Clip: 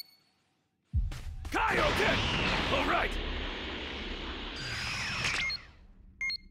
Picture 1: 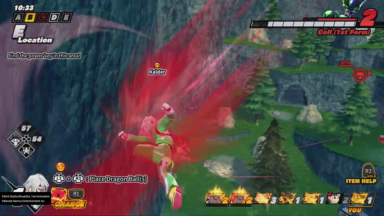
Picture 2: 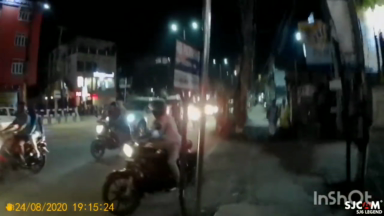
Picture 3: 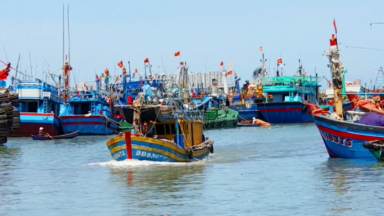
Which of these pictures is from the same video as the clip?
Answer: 1